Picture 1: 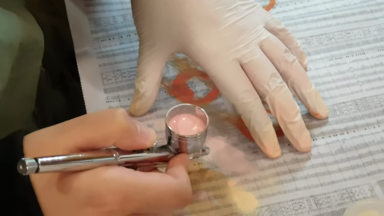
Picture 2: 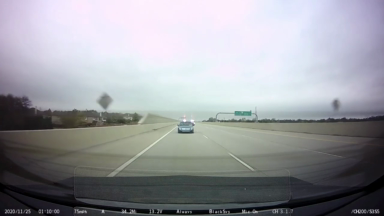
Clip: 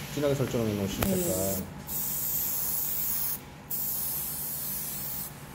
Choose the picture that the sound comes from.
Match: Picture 1